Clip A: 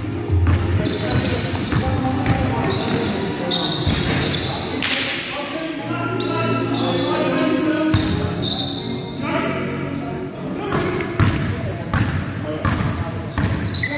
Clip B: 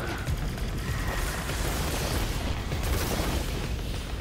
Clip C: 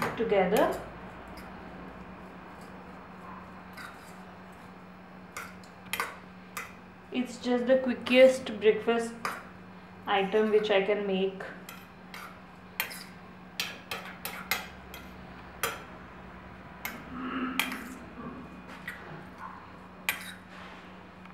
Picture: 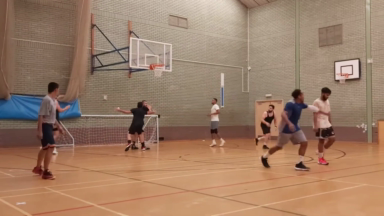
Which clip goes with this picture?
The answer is A